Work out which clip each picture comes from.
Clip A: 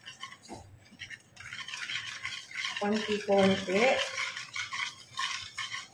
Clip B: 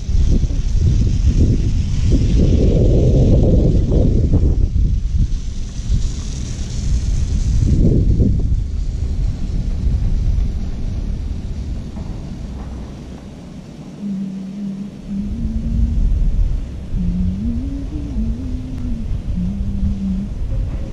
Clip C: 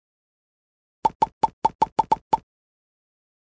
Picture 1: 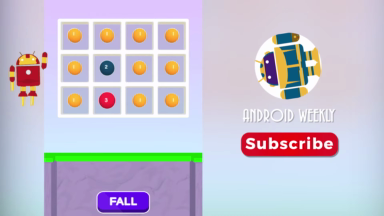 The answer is C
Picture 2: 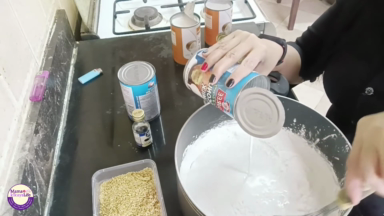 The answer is A